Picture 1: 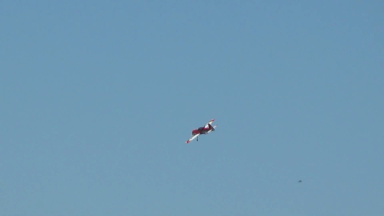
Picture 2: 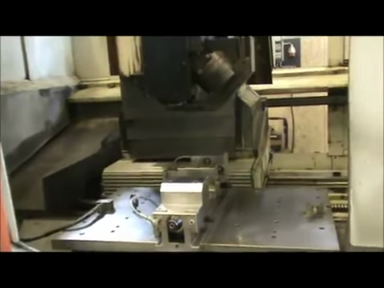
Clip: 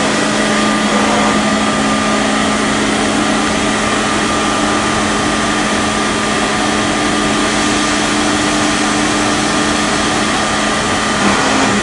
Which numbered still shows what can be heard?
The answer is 2